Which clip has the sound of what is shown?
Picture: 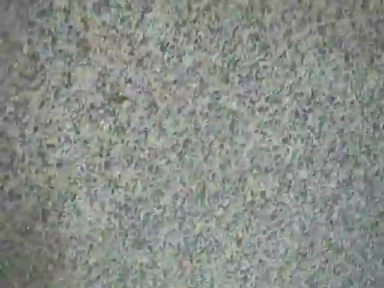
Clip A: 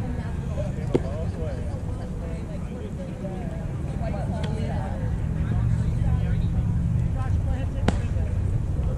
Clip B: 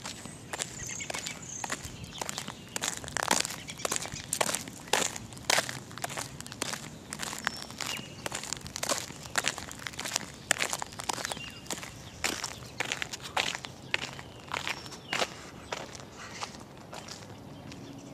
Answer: B